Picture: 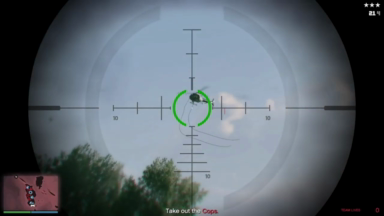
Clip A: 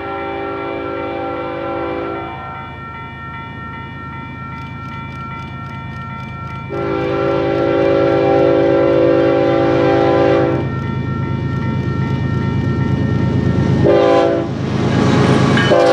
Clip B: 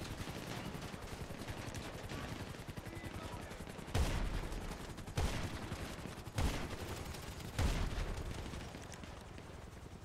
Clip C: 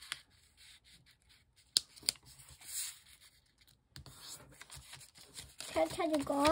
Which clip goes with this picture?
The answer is B